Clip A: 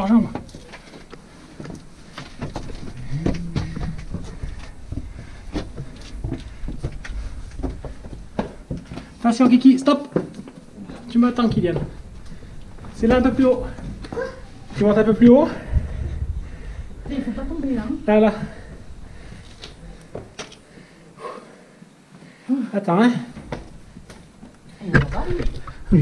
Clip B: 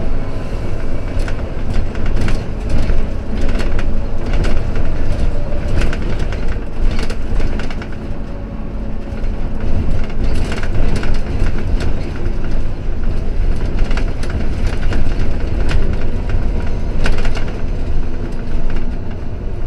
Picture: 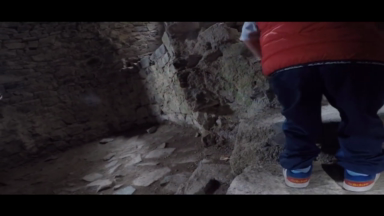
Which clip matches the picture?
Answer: A